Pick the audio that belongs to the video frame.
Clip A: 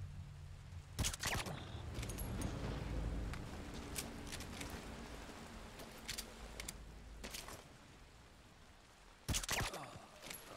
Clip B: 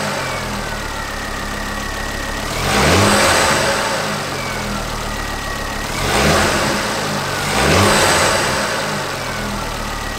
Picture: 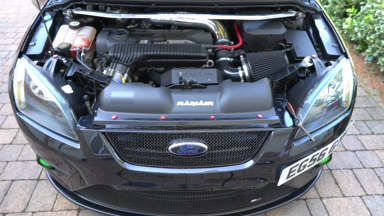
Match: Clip B